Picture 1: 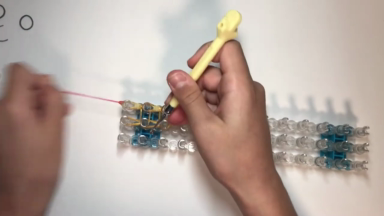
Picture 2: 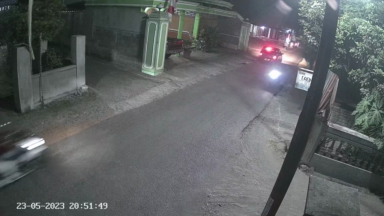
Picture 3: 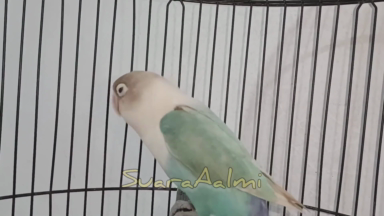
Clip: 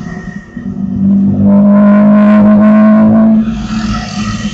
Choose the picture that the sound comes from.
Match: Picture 2